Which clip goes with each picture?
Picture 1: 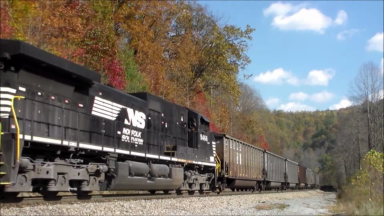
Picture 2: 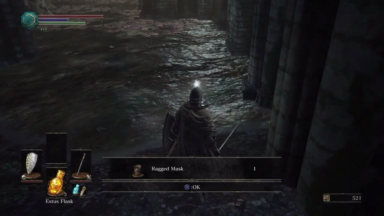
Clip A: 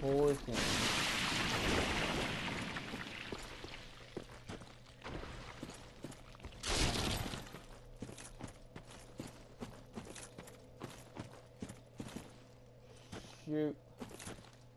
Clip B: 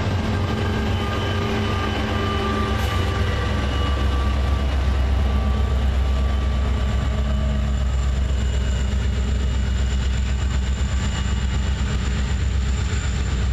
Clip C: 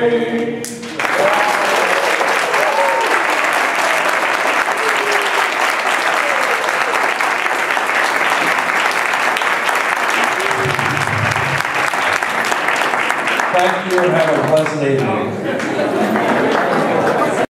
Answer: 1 B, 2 A